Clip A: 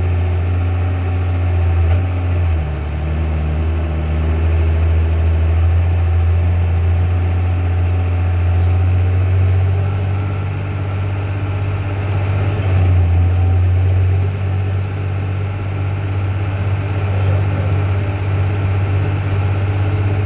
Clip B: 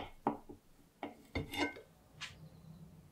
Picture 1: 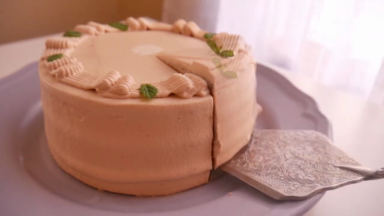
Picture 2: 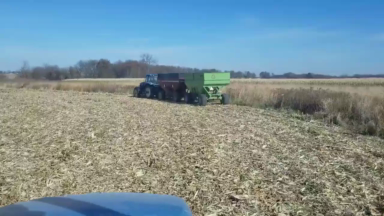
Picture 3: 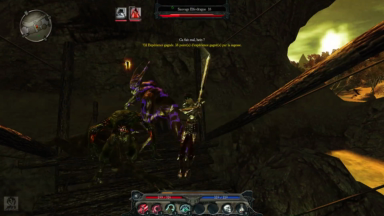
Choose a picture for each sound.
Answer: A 2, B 1